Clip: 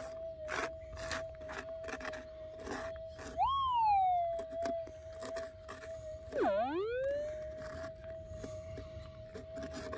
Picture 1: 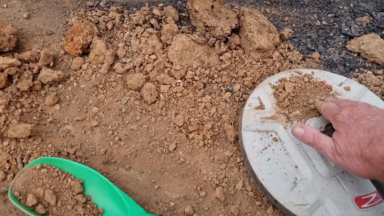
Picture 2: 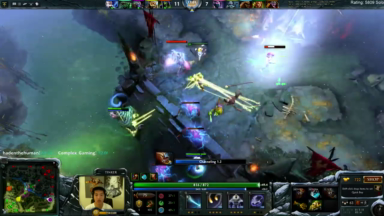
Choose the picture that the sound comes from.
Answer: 1